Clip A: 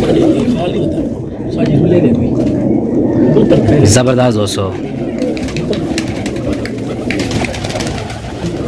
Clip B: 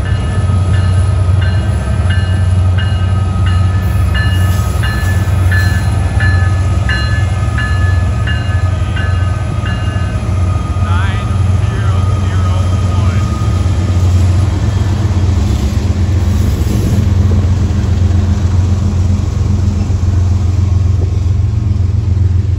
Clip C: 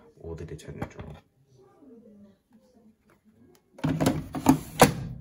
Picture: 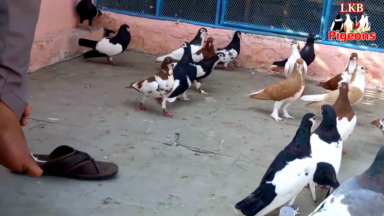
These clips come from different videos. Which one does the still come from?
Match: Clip A